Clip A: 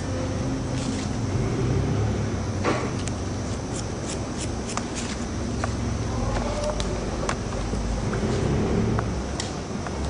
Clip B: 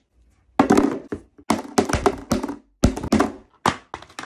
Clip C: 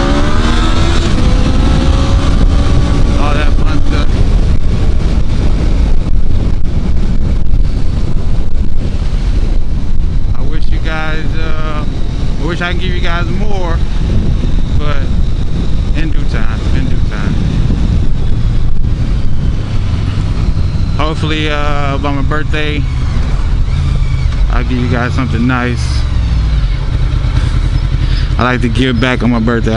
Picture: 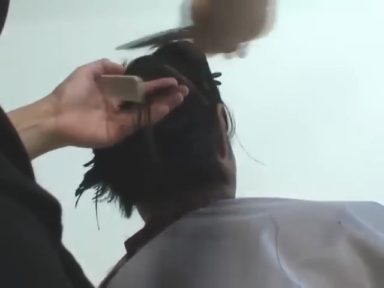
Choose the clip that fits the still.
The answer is A